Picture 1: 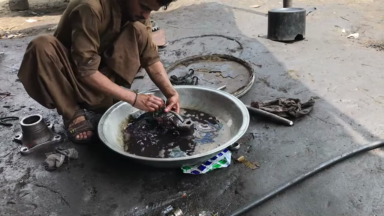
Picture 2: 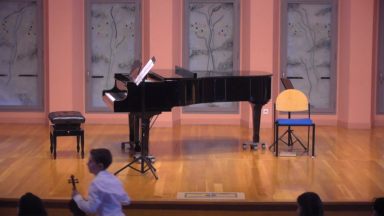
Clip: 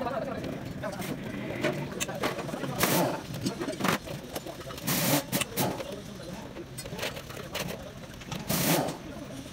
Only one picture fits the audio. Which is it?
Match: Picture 1